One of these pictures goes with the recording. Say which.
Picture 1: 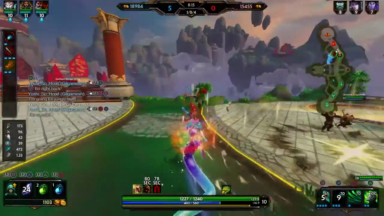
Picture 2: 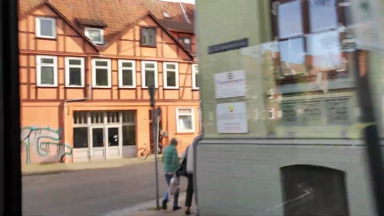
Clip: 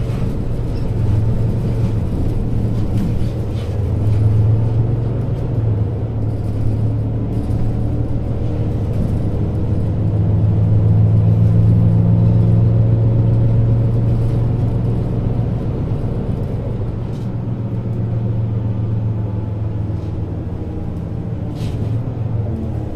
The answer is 2